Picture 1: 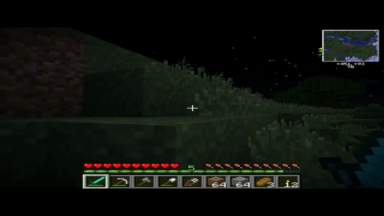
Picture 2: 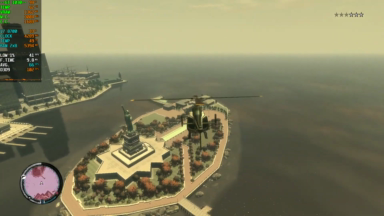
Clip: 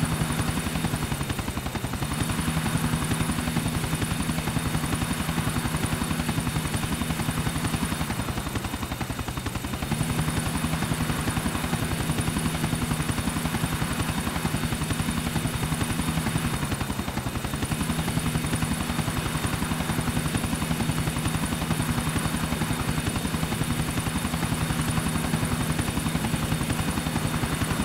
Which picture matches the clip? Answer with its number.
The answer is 2